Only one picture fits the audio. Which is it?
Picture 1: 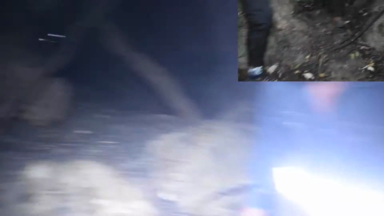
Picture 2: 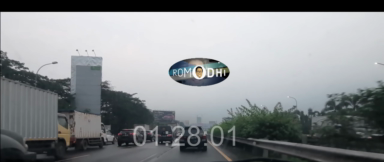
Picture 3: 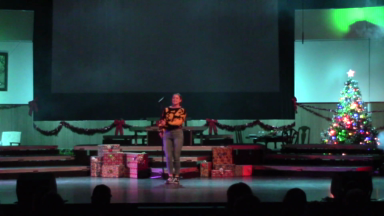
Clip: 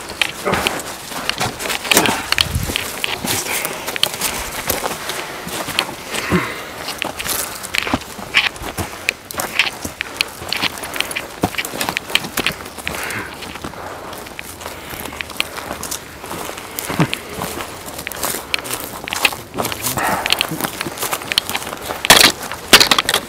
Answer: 1